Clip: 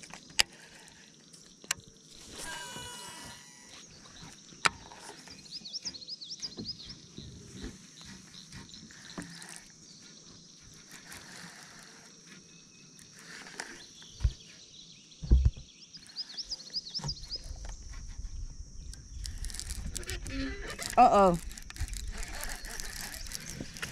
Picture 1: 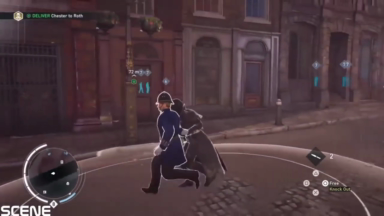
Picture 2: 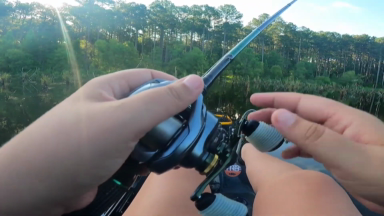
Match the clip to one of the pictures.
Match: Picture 2